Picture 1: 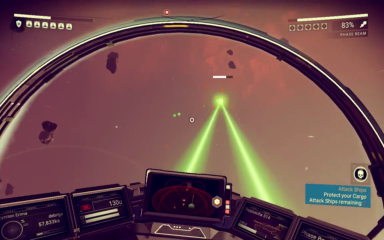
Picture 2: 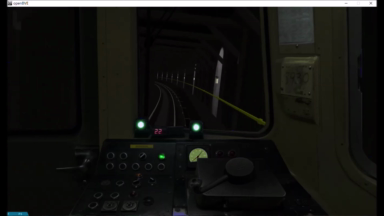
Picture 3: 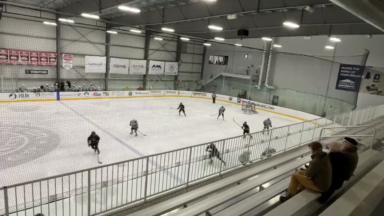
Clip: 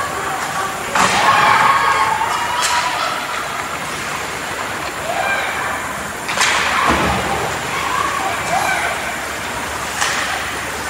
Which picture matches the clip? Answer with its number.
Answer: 3